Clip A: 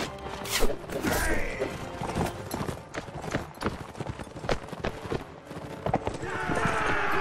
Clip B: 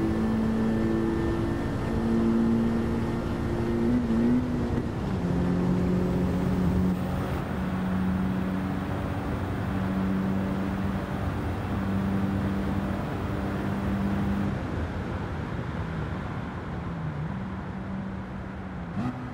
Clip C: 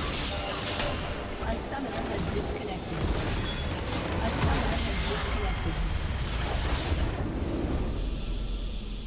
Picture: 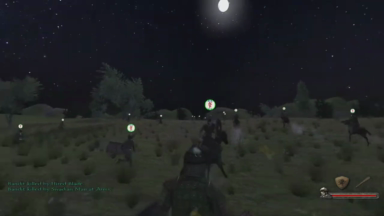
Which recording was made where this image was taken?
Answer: A